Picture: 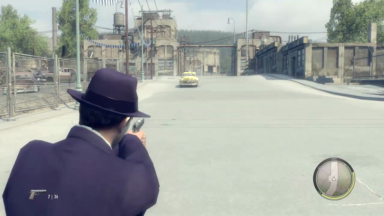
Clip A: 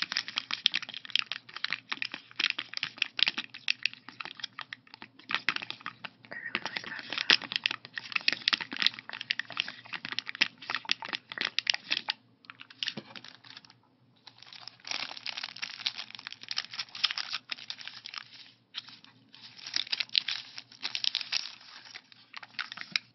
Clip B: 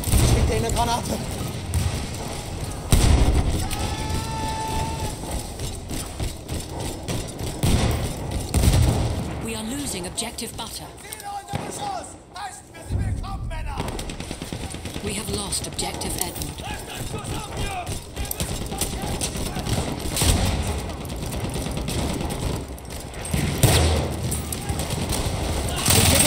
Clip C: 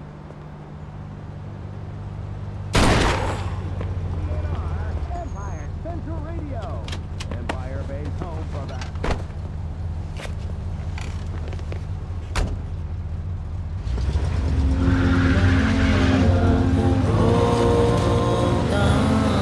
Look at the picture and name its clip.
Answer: C